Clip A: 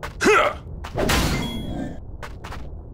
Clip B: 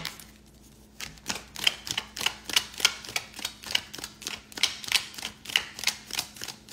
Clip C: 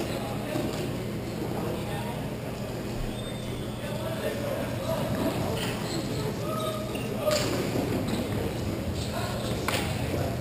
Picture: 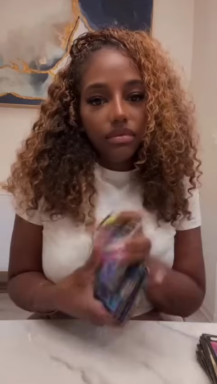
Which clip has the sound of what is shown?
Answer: B